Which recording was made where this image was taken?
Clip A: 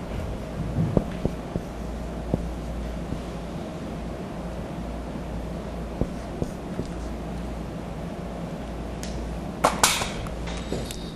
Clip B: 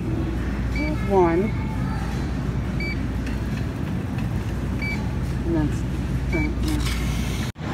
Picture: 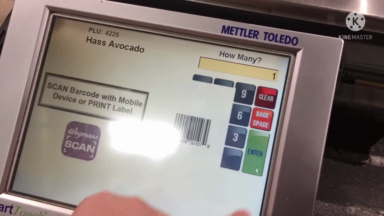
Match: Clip B